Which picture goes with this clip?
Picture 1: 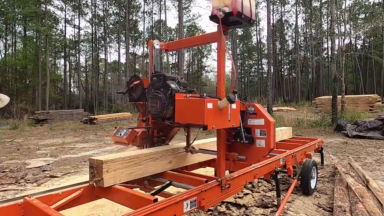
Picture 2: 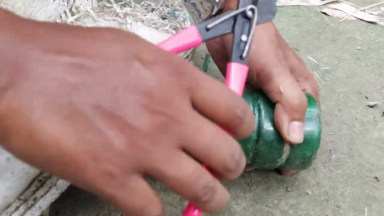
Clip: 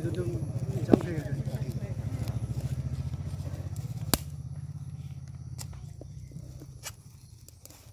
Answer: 2